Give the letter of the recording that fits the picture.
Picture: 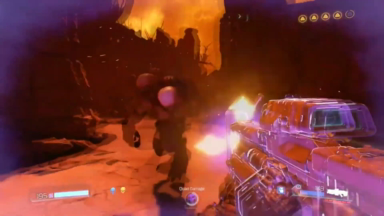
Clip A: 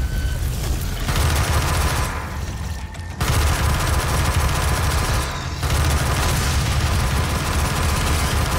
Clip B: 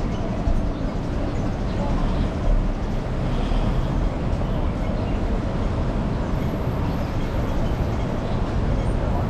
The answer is A